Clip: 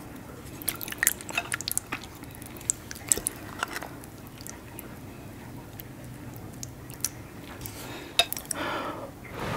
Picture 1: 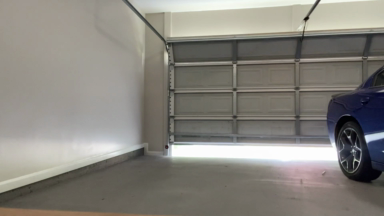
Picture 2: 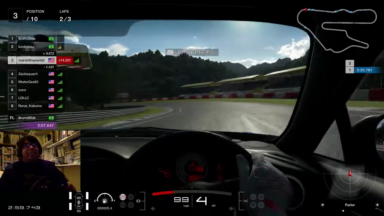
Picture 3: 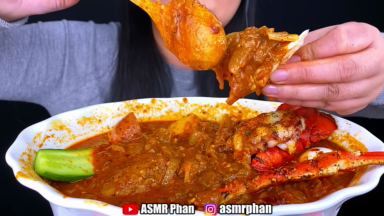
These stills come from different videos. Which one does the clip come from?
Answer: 3